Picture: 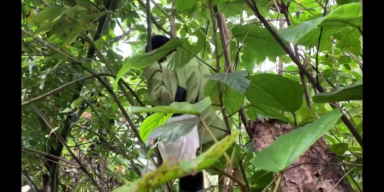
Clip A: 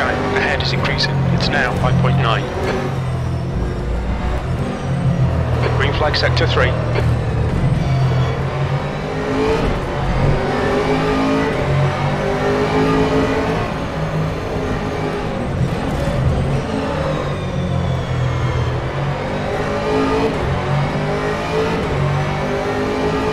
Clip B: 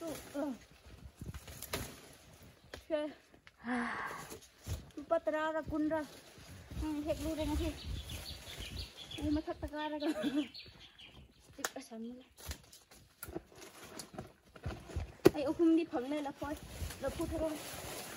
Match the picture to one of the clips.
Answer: B